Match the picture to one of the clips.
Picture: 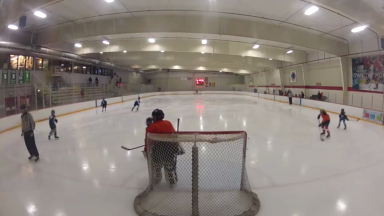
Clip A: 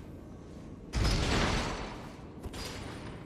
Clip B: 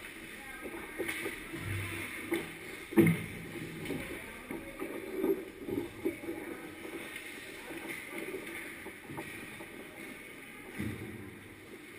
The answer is B